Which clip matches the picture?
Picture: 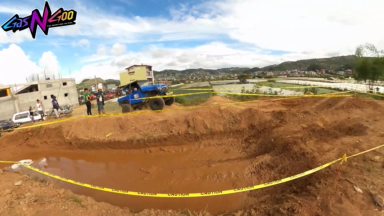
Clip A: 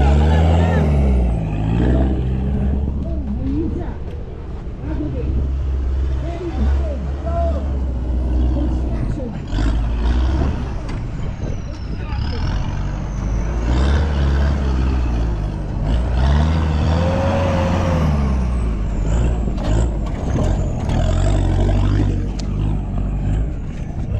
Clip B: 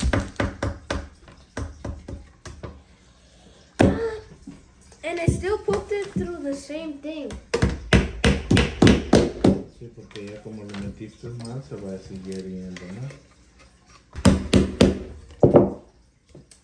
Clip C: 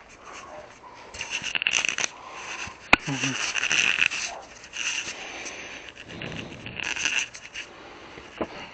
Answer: A